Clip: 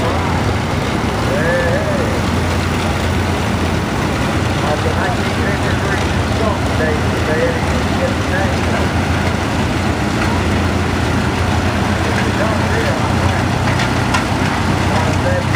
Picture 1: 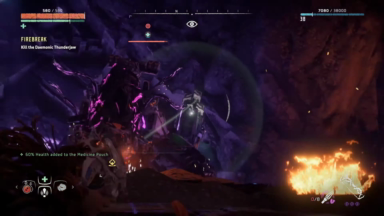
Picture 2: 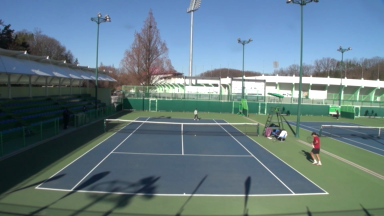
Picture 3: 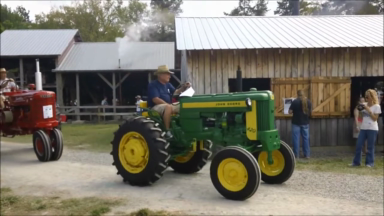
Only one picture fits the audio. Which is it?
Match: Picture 3